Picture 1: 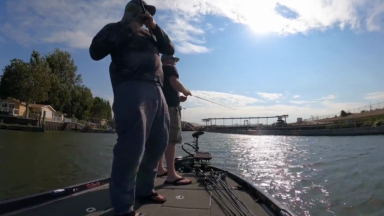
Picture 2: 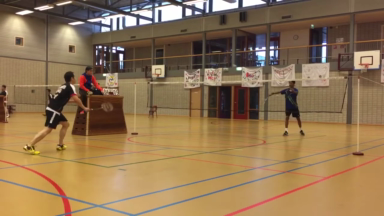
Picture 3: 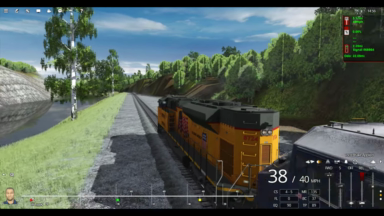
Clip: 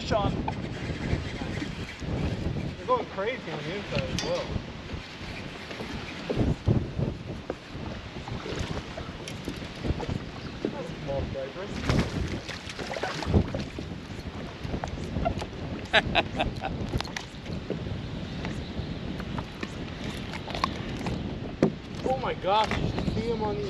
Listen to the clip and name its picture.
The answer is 1